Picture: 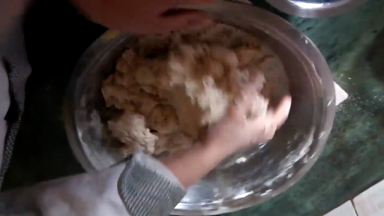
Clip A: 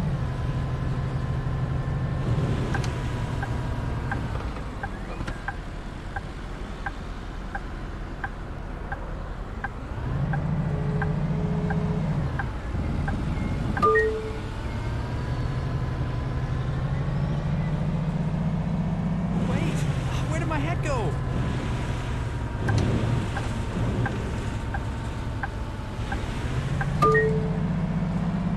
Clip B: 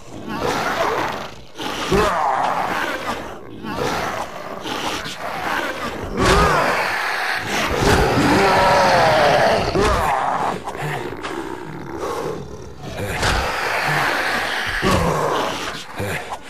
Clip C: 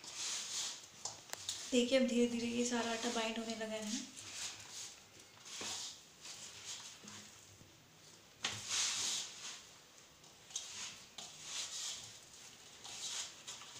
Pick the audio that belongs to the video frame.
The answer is C